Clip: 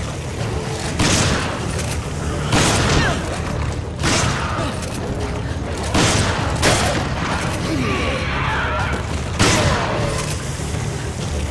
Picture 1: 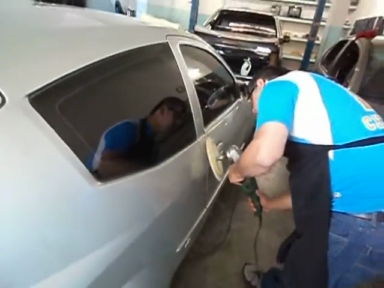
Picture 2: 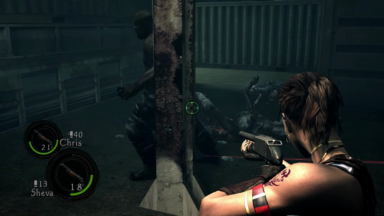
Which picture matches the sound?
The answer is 2